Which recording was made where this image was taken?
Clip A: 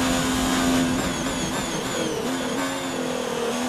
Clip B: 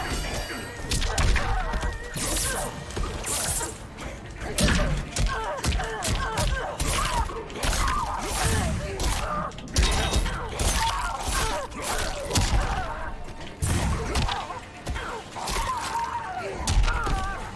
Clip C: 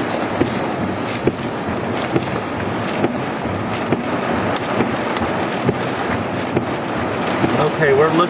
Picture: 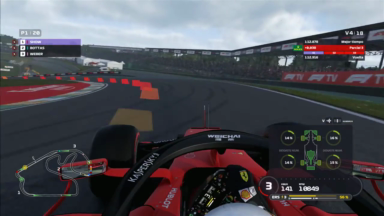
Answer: A